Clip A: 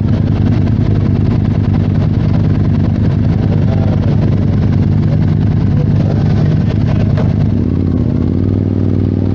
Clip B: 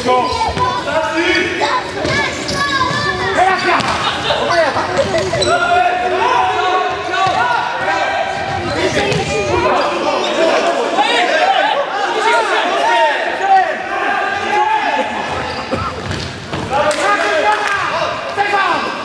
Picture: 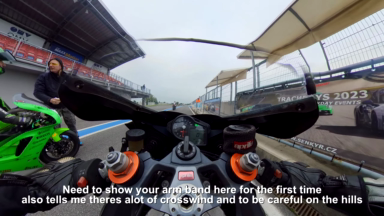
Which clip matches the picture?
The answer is A